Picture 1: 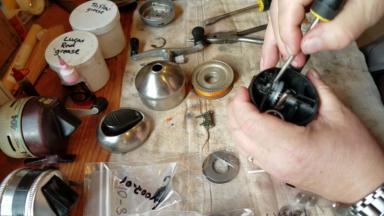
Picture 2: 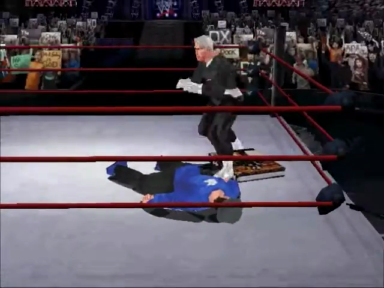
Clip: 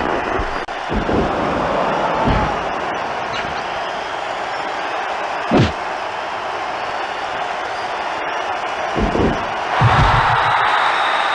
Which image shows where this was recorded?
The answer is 2